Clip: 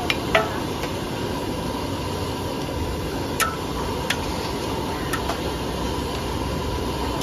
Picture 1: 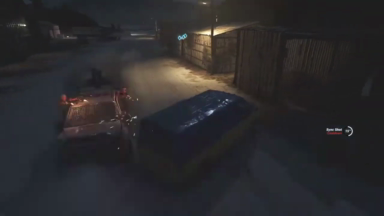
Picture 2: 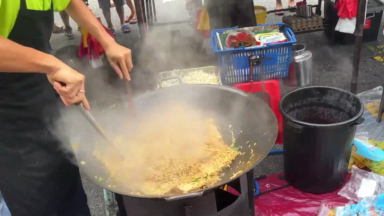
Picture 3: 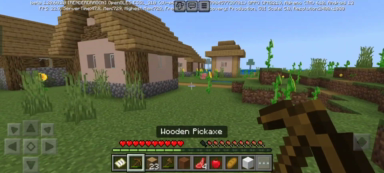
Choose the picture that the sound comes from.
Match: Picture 2